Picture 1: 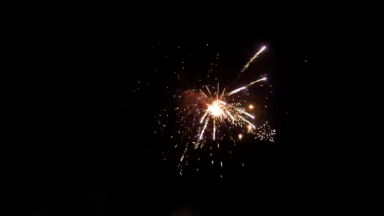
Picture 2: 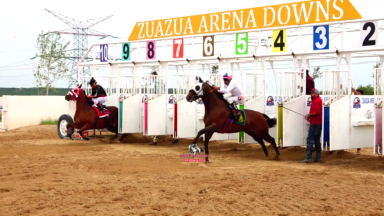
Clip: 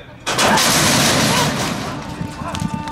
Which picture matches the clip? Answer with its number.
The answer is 2